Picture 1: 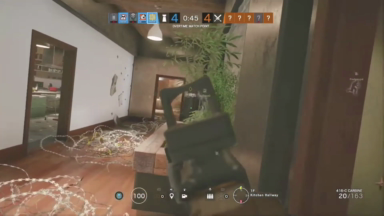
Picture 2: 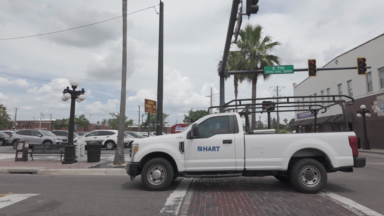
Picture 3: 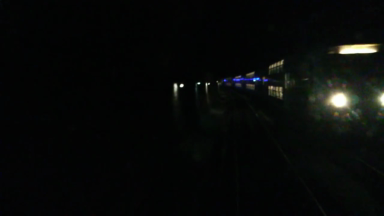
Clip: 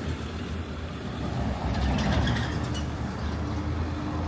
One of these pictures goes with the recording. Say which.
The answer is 2